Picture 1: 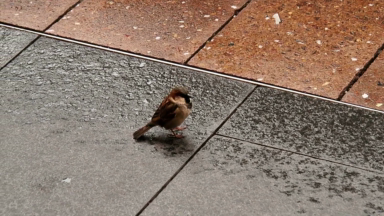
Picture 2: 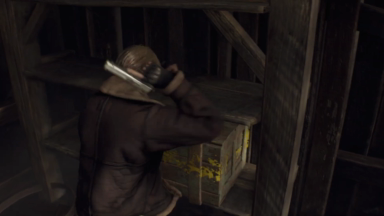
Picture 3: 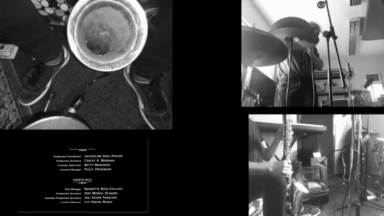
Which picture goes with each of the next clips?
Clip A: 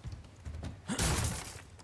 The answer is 2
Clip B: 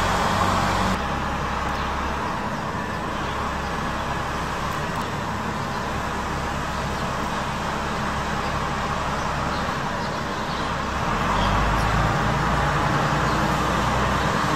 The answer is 1